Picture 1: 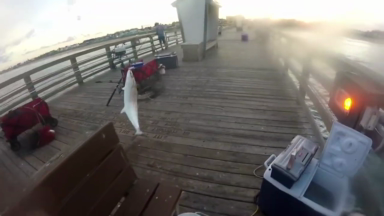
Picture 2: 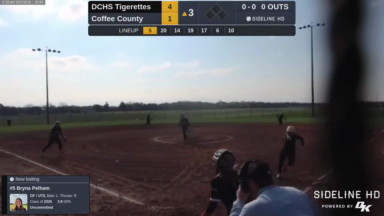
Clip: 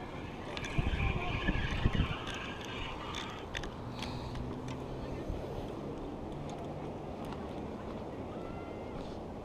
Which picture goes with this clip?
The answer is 1